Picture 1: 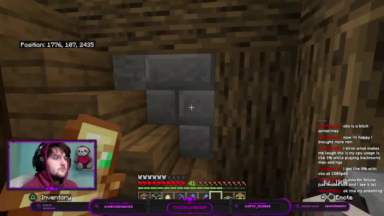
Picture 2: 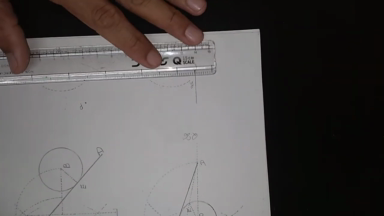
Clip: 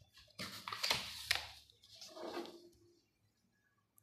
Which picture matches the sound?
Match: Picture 2